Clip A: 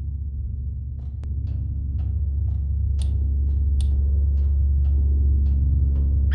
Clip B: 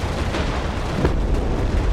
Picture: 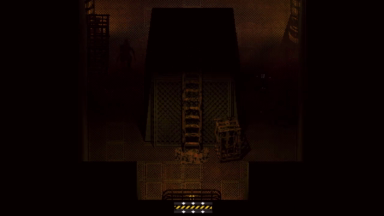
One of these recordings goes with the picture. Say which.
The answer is A